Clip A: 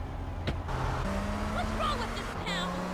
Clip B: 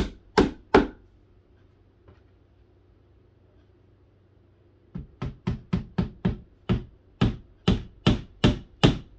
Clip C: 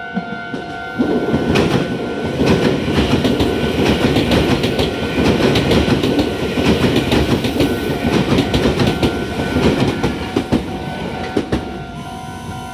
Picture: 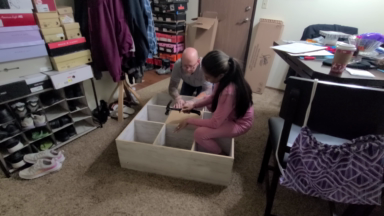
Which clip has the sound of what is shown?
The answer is B